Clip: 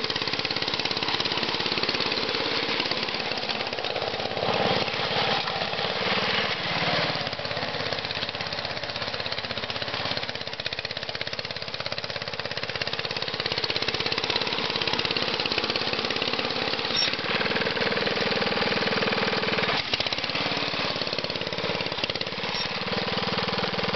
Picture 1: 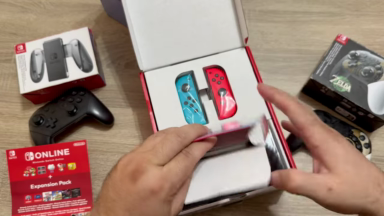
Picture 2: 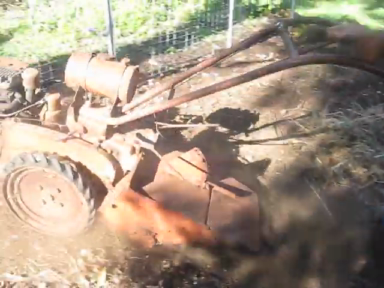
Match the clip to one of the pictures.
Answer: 2